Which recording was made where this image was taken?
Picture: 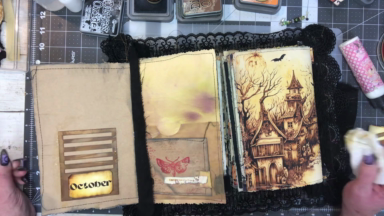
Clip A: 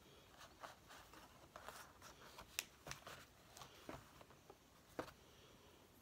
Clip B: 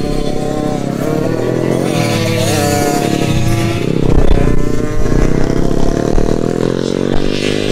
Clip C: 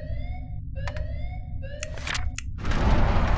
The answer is A